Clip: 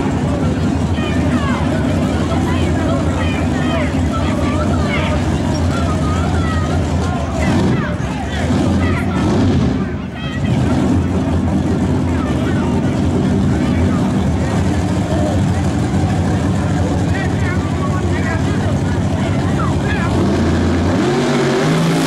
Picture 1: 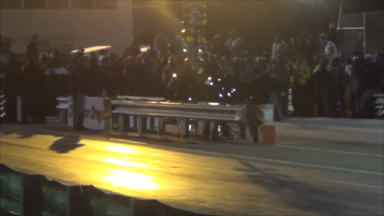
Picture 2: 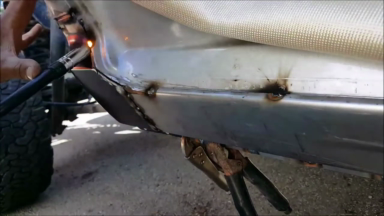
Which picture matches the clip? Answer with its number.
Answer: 1